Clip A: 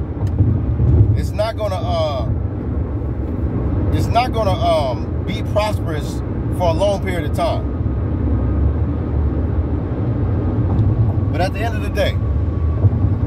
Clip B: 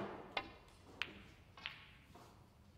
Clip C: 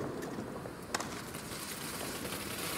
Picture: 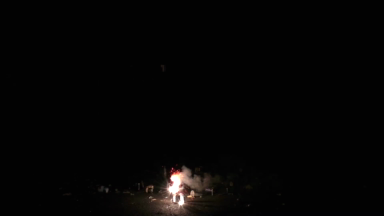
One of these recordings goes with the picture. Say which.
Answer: C